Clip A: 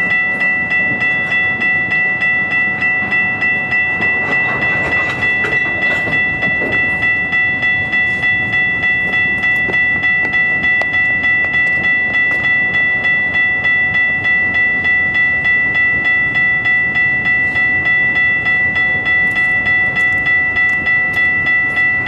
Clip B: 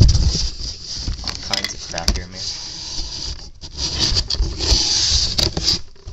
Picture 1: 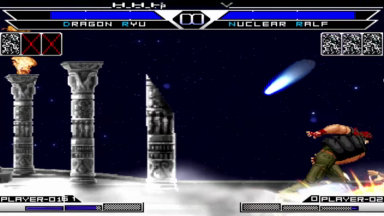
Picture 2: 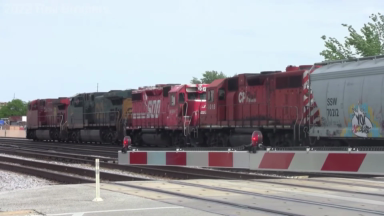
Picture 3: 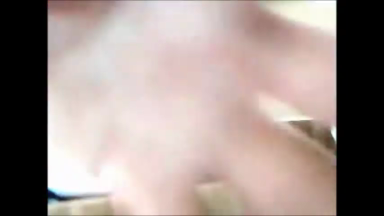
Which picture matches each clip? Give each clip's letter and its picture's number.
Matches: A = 2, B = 3